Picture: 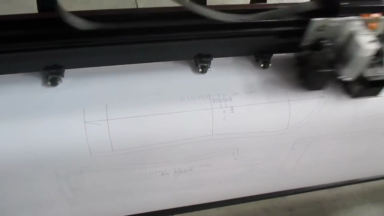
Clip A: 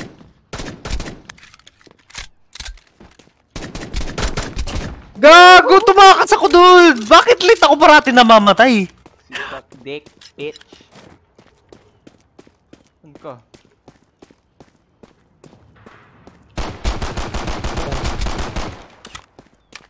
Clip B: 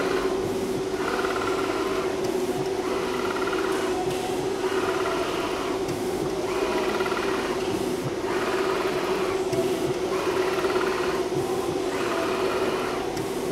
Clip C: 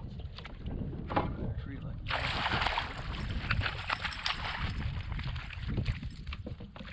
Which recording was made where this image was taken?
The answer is B